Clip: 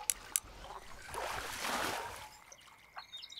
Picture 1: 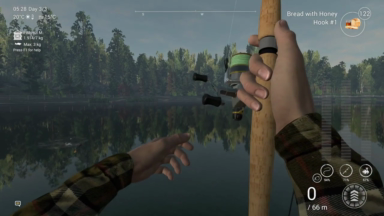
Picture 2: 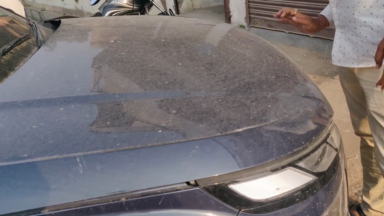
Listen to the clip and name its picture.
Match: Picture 1